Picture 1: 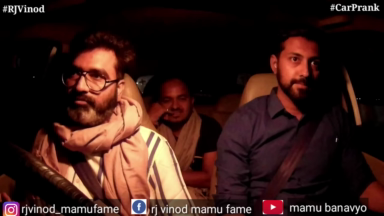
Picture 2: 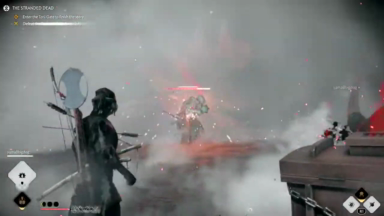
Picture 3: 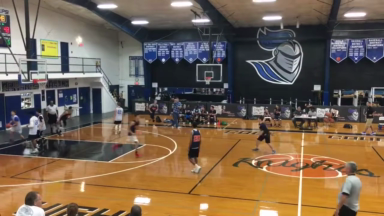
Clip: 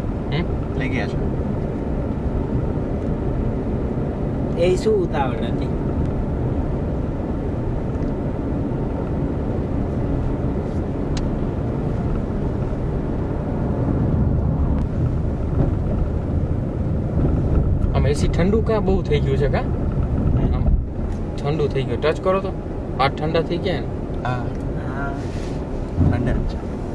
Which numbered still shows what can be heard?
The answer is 1